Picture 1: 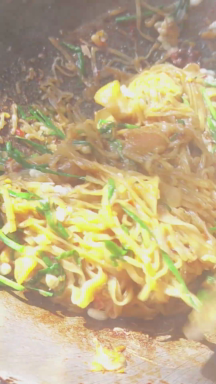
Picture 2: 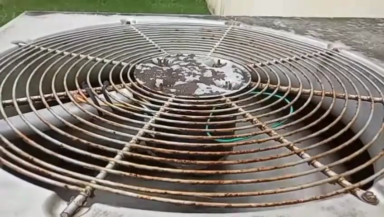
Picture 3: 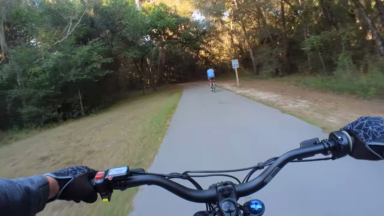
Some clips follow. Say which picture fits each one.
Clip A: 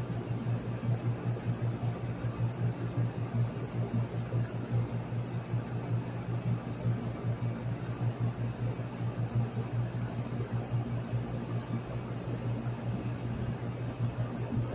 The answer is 2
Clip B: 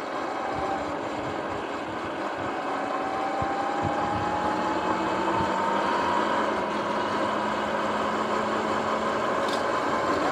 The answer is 3